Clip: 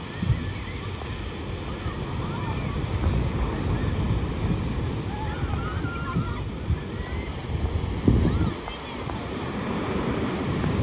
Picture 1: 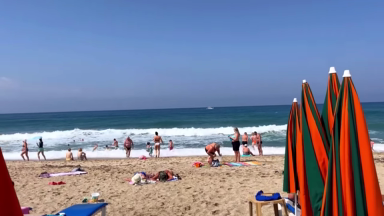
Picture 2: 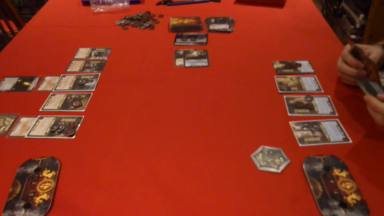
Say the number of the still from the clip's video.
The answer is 1